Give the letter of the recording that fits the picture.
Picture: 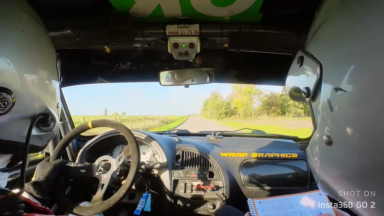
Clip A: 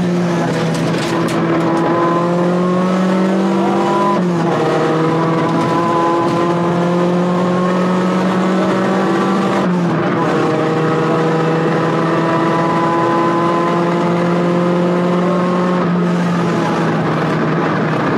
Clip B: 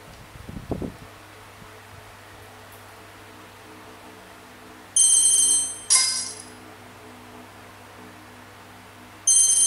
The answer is A